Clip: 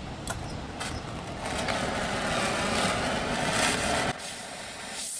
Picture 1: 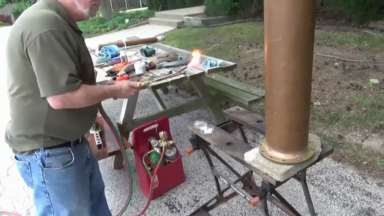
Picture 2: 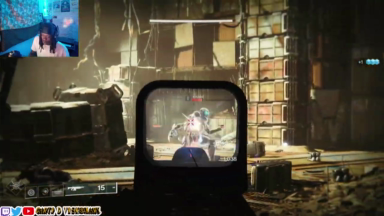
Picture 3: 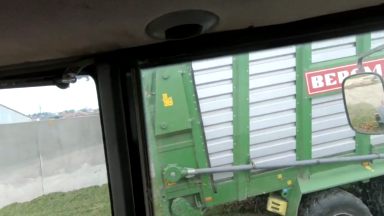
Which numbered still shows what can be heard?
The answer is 1